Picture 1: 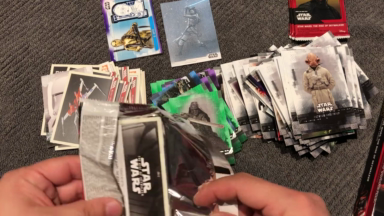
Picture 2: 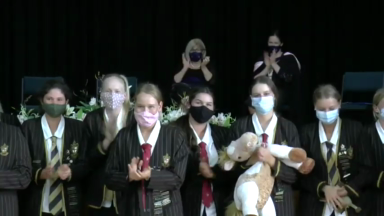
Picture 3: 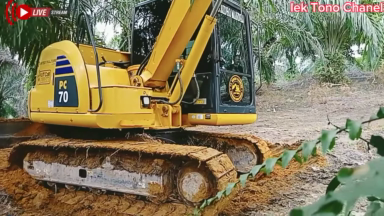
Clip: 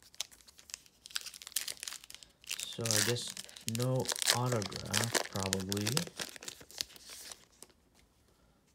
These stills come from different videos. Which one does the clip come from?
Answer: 1